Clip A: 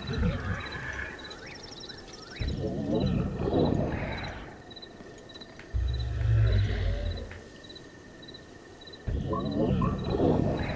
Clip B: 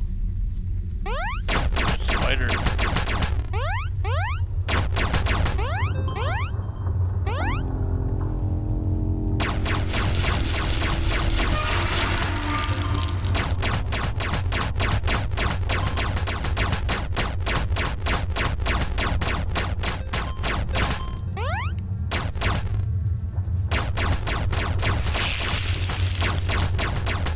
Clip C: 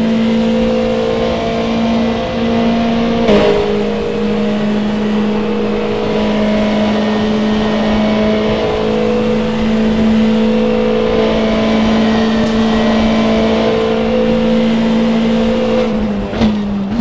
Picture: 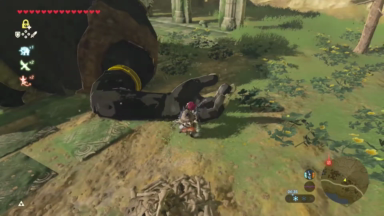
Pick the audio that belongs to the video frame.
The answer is A